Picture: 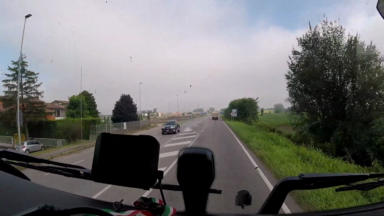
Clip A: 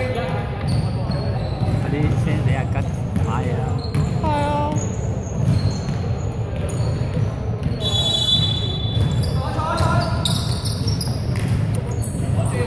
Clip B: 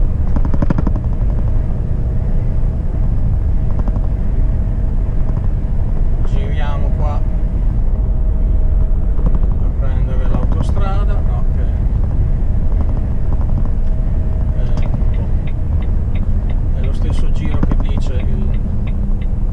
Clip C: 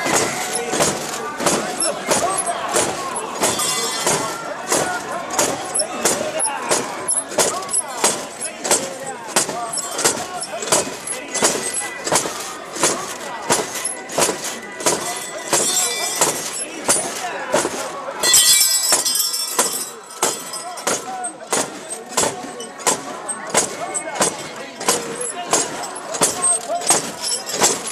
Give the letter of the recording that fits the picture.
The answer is B